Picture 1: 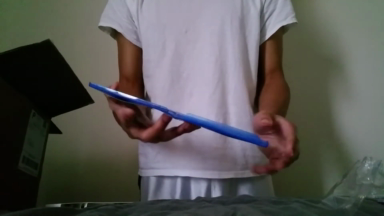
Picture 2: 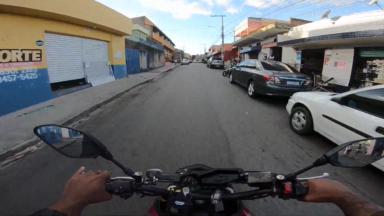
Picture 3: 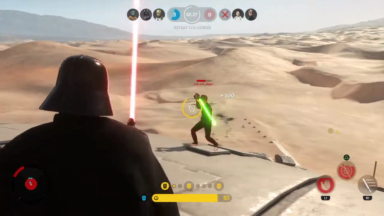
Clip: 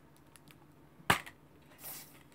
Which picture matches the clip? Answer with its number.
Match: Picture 1